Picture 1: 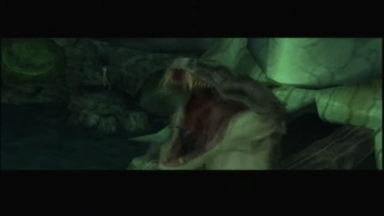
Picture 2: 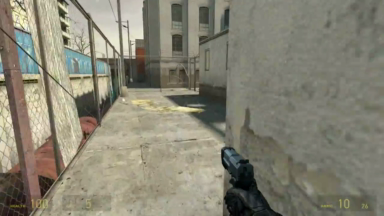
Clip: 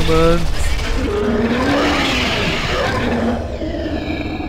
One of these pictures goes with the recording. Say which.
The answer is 1